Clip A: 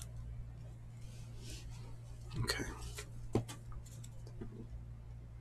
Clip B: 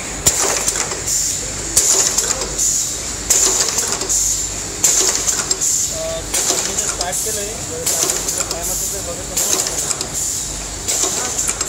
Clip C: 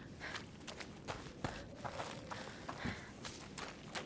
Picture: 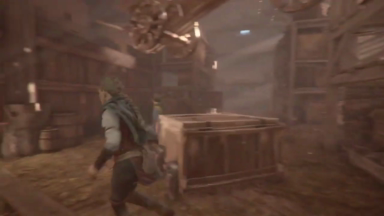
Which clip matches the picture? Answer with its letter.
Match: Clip C